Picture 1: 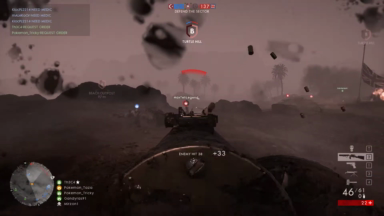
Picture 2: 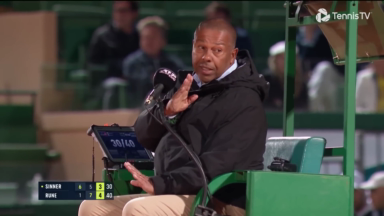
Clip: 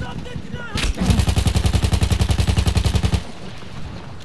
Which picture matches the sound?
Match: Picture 1